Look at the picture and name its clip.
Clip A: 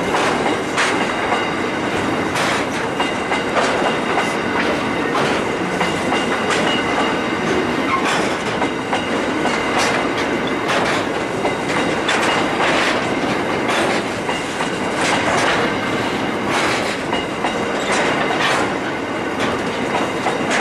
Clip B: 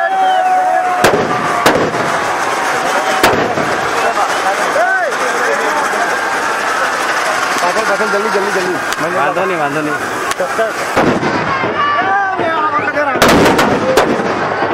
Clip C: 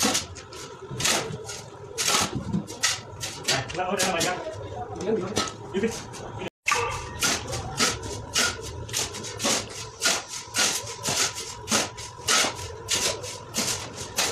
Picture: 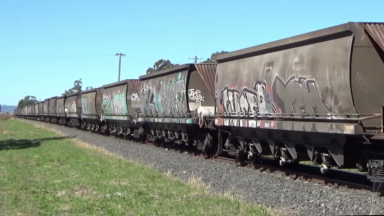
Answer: A